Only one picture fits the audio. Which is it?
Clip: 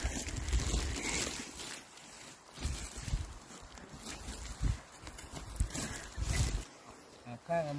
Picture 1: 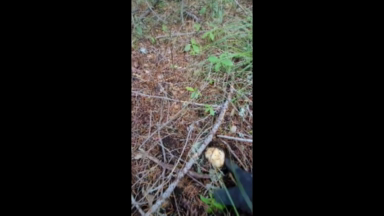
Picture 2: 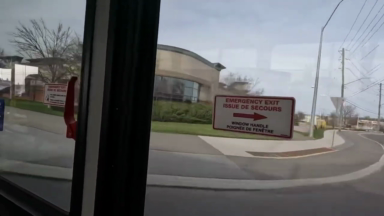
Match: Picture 1